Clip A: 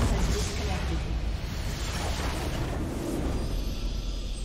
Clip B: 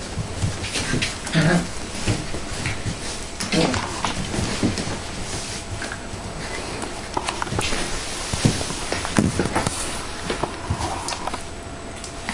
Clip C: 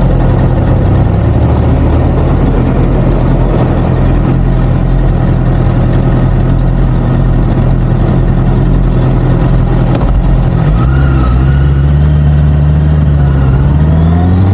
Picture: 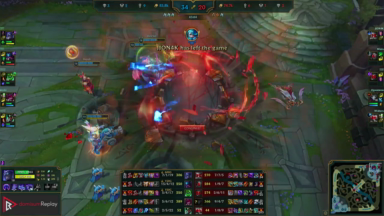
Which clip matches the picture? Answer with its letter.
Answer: A